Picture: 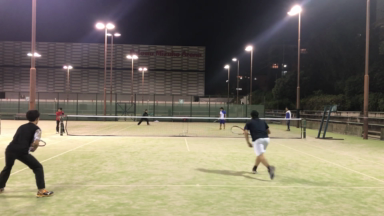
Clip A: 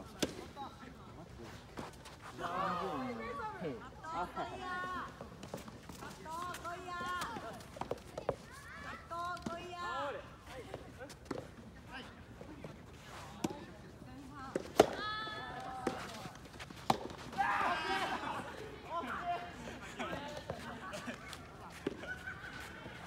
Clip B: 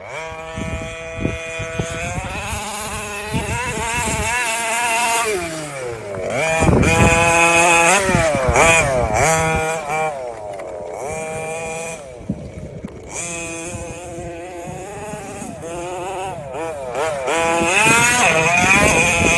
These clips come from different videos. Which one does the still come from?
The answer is A